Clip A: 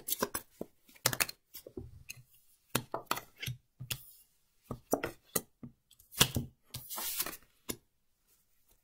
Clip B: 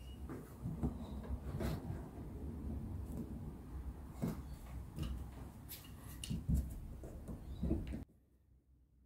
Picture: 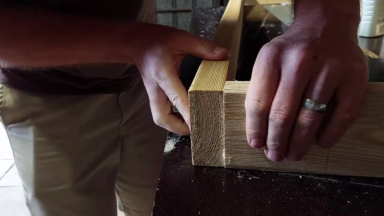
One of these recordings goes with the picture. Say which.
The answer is B